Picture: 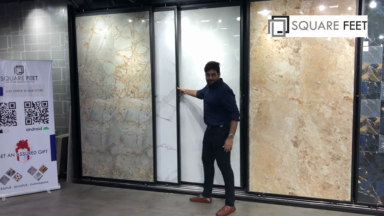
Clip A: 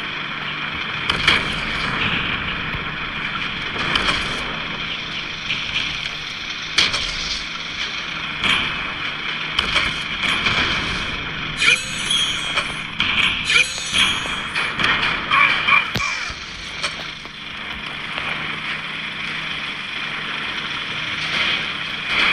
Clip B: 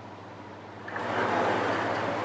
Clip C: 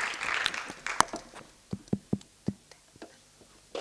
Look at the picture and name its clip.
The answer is B